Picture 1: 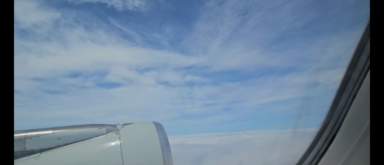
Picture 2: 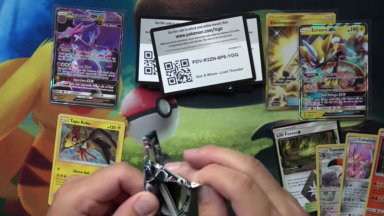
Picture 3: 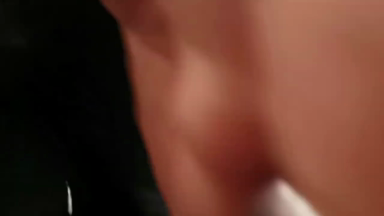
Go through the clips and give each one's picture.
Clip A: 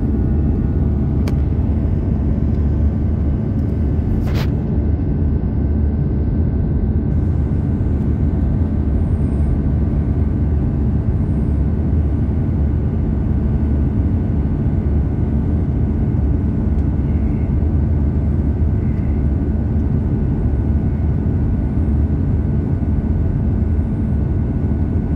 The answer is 1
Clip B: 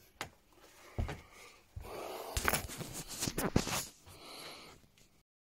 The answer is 3